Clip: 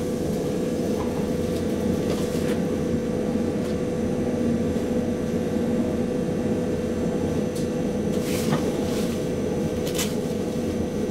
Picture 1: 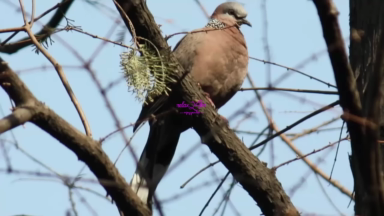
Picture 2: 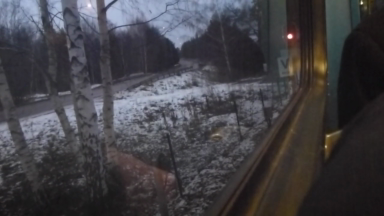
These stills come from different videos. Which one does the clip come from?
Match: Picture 2